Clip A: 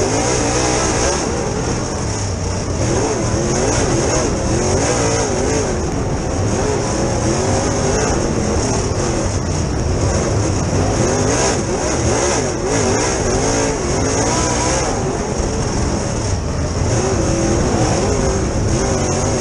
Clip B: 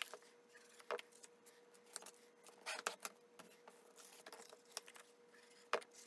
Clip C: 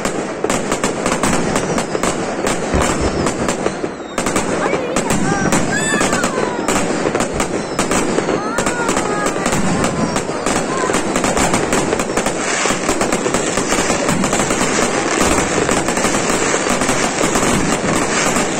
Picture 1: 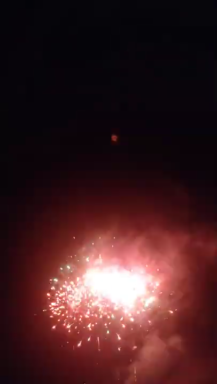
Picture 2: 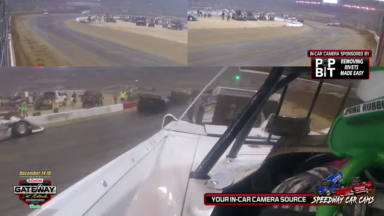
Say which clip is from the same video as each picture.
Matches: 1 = C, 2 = A